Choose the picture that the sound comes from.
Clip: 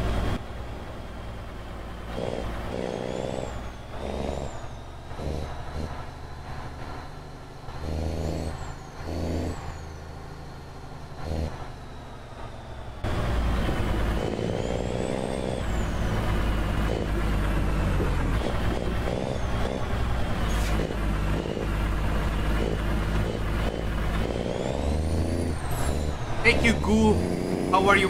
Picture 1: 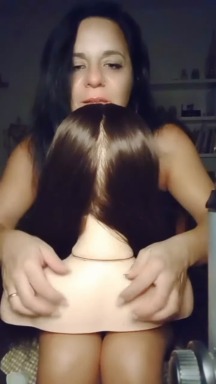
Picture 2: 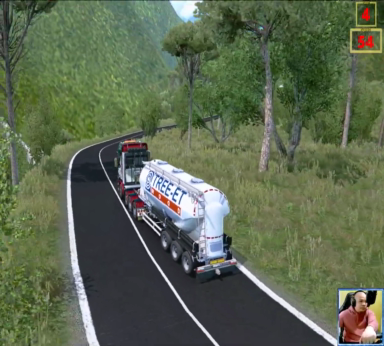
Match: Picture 2